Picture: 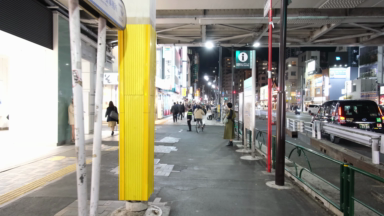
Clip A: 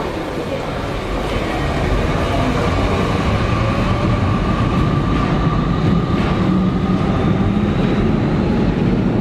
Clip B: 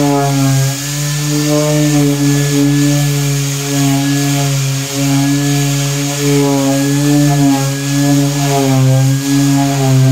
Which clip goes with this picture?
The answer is A